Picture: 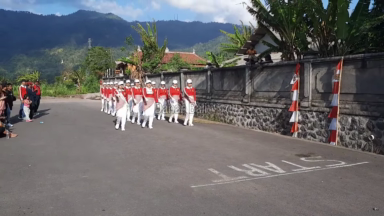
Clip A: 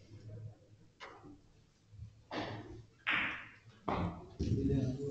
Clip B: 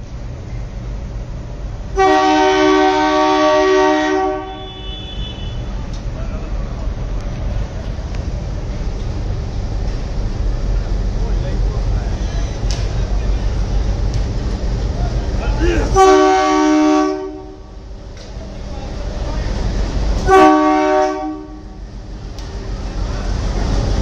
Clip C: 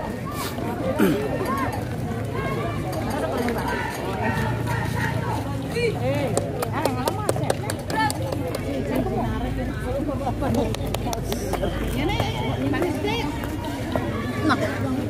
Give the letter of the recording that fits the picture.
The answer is C